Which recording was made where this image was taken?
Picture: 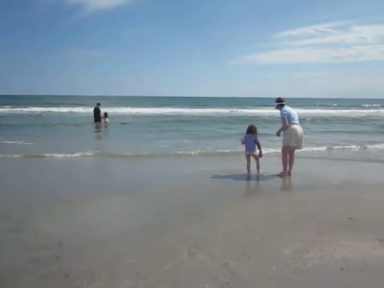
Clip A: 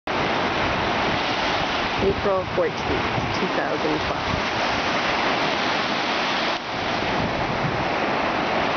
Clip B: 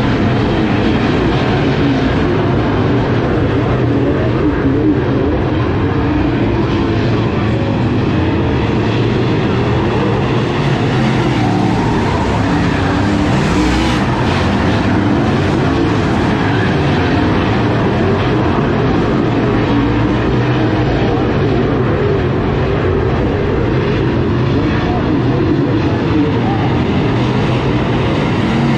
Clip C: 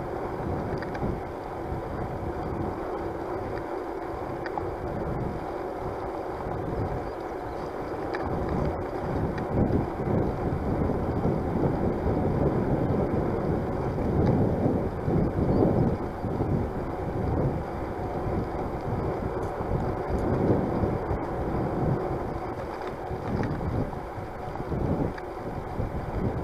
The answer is A